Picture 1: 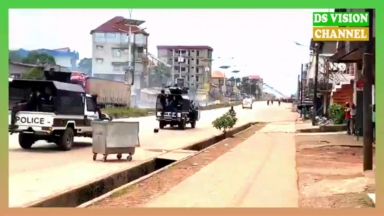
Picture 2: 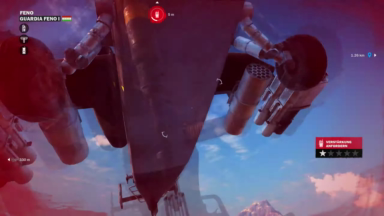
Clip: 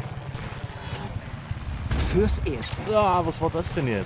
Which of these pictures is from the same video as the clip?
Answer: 2